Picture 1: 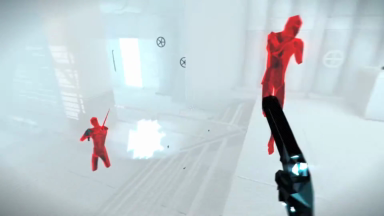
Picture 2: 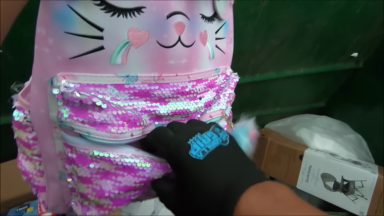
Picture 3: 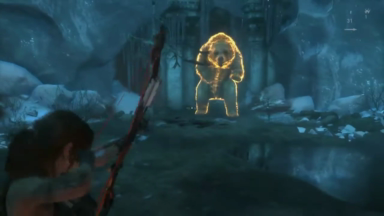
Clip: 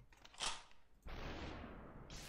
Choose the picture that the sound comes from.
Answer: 1